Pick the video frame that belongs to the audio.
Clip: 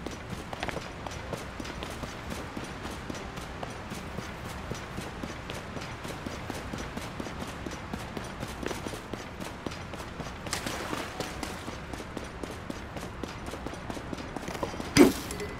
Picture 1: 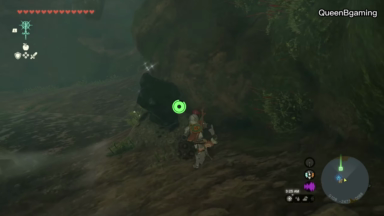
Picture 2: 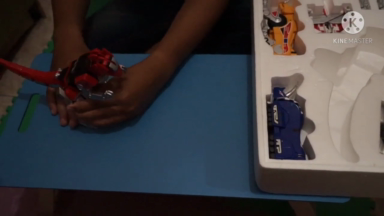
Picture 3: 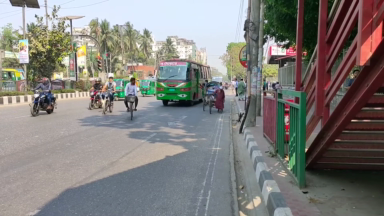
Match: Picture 1